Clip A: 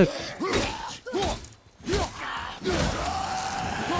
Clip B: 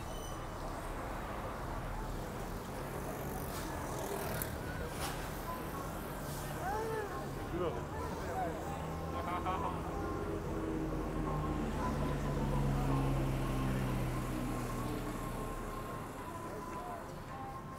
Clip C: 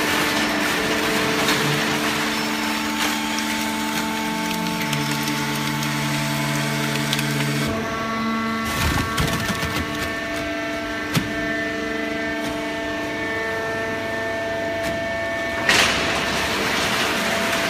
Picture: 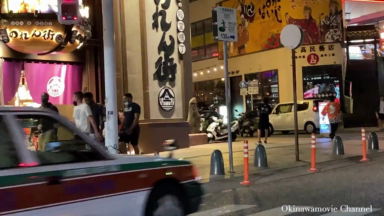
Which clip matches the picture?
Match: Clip B